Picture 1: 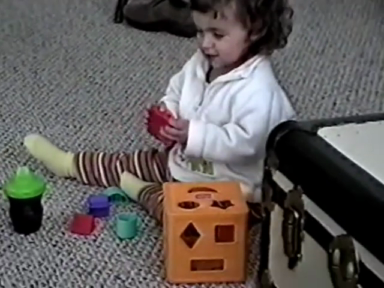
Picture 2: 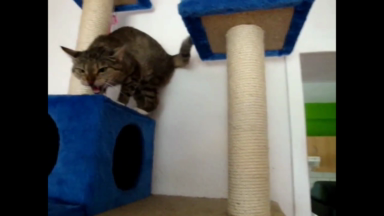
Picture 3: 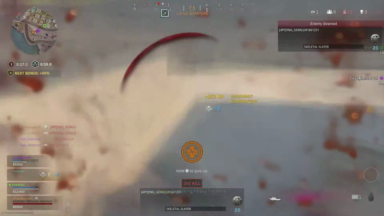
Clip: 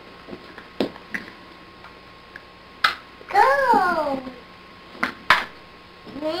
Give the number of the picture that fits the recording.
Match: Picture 1